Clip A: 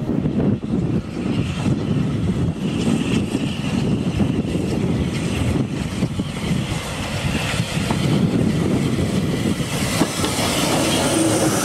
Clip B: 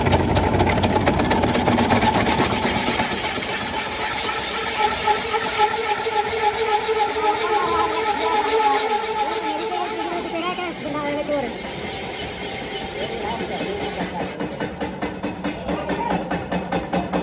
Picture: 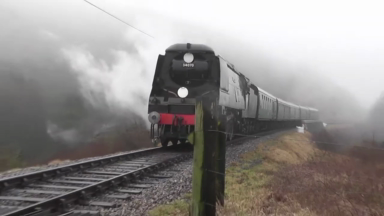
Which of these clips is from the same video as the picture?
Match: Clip A